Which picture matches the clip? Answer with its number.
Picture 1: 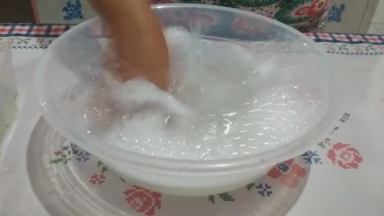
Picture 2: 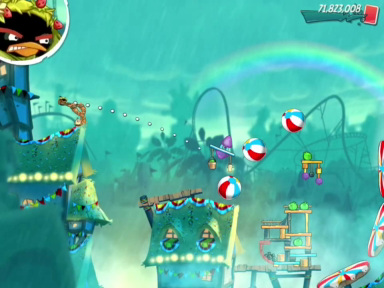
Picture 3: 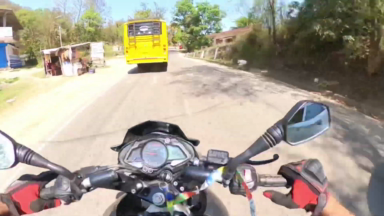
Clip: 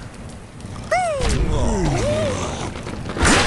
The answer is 2